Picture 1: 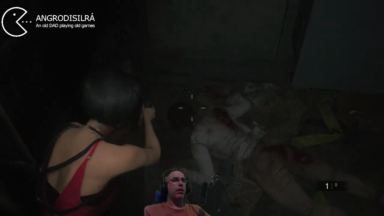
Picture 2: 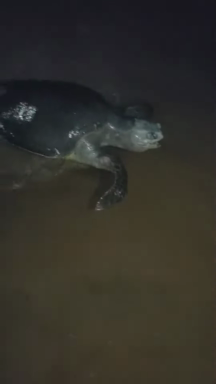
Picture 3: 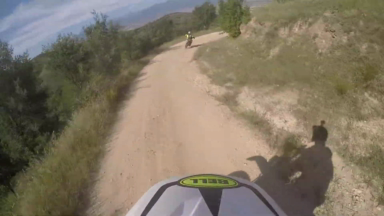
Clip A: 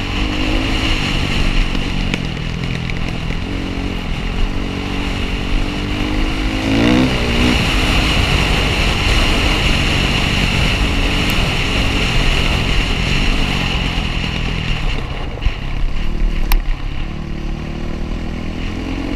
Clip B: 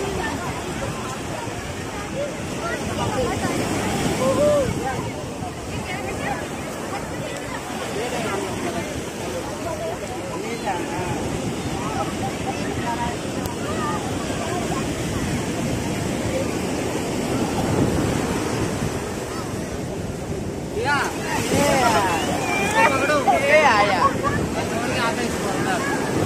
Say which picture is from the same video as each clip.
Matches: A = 3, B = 2